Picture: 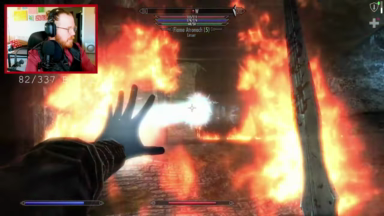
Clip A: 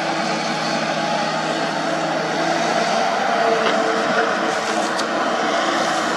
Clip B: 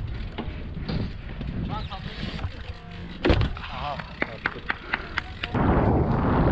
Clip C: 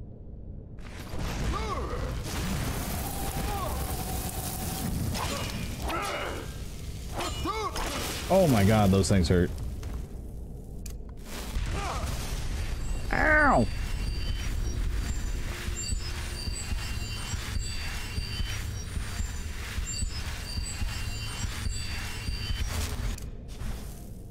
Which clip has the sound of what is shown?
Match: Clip C